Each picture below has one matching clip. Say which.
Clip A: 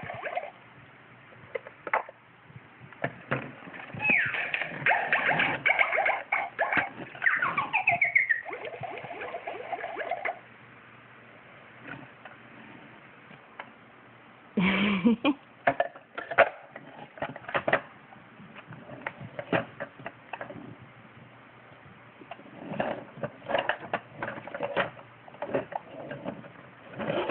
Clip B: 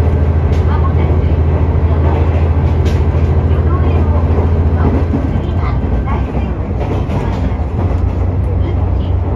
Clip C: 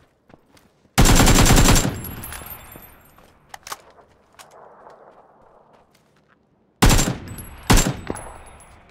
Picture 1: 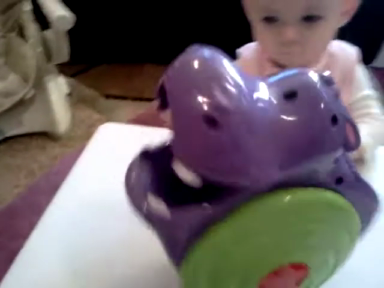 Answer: A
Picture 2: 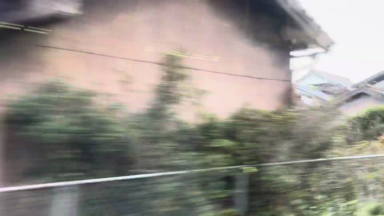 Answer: B